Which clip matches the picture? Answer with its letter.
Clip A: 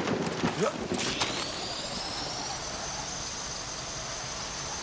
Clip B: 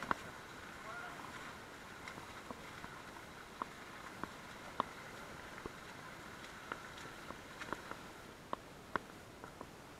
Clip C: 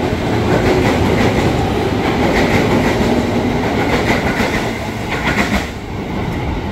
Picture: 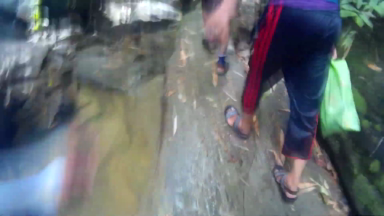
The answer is B